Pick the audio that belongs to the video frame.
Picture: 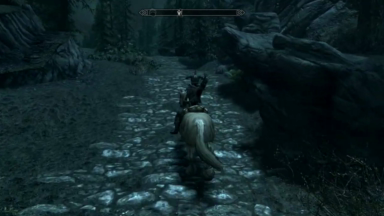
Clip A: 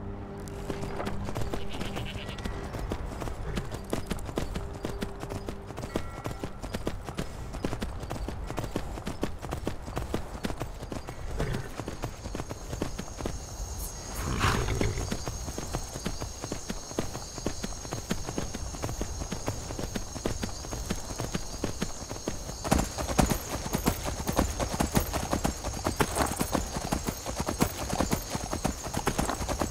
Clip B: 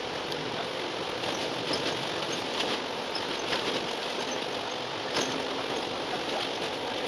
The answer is A